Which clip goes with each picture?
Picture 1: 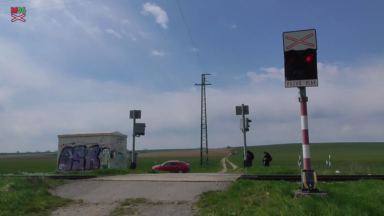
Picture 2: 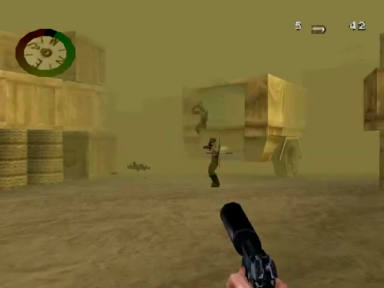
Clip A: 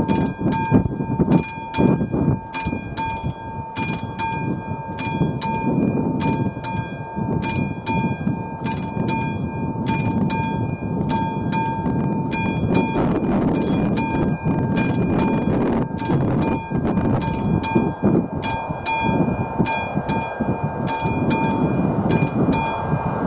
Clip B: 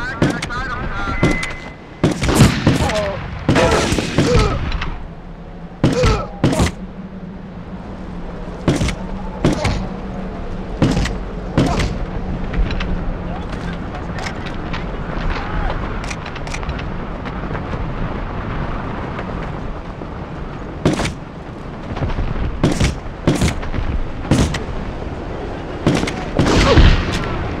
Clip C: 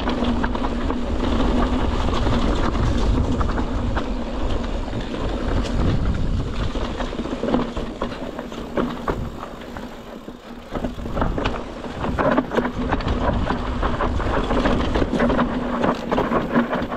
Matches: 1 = A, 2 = B